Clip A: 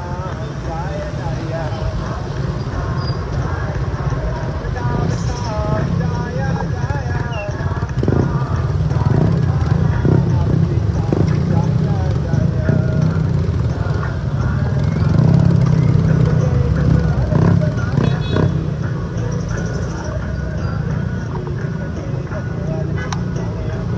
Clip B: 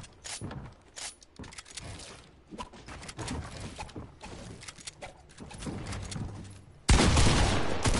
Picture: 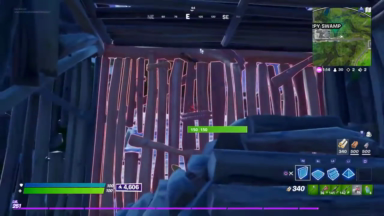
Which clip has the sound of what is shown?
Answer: B